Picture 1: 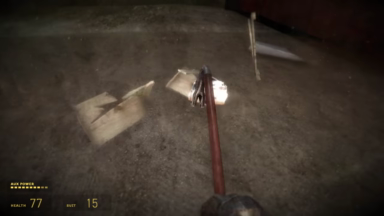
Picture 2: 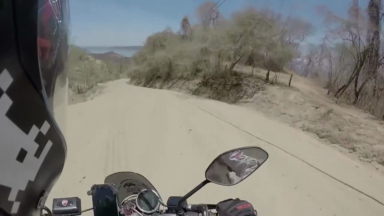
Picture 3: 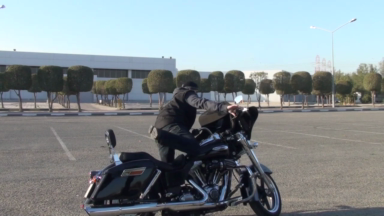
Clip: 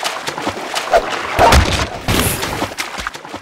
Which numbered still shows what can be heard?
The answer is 1